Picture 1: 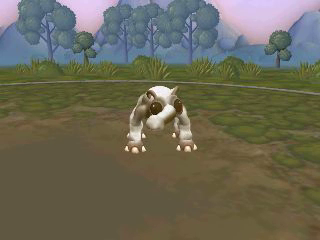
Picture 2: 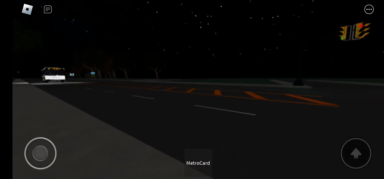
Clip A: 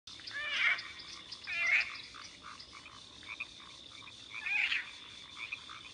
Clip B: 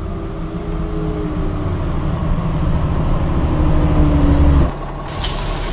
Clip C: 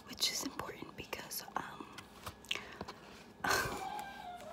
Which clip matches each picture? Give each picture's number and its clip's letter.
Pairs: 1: A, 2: B